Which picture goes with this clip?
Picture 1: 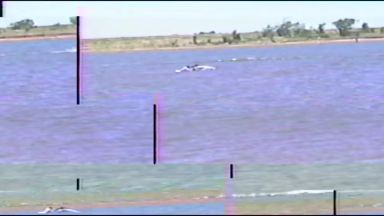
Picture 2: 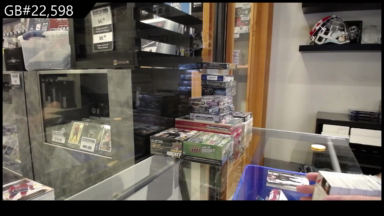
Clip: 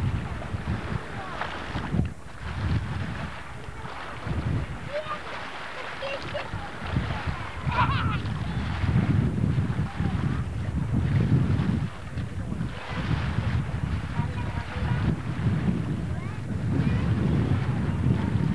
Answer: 1